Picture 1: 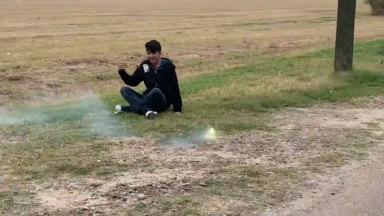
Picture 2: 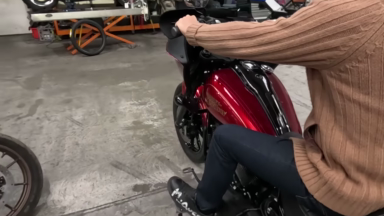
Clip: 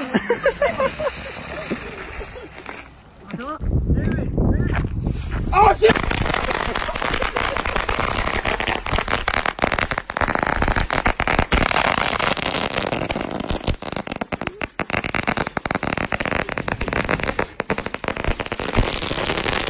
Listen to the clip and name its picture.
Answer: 1